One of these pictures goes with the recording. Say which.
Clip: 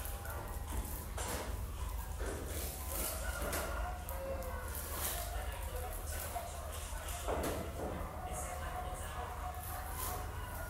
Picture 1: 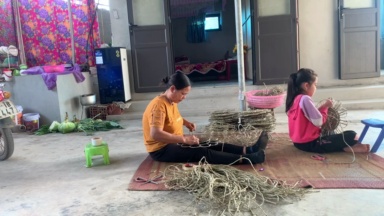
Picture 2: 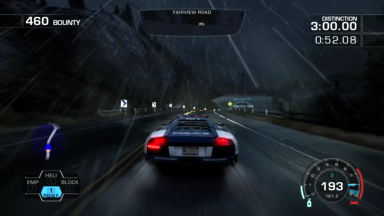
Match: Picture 1